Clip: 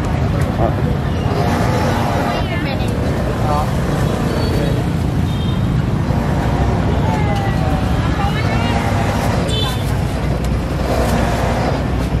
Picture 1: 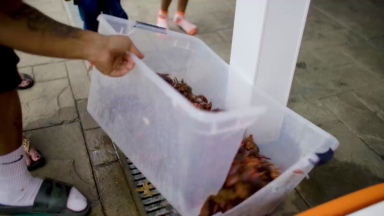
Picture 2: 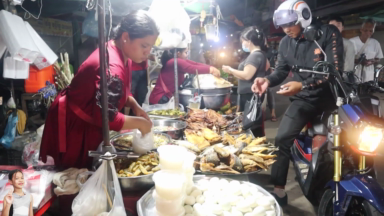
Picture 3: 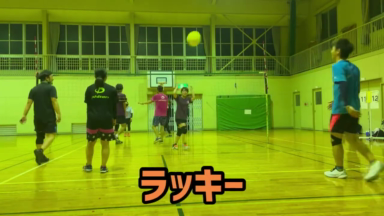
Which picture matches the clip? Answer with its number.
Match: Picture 2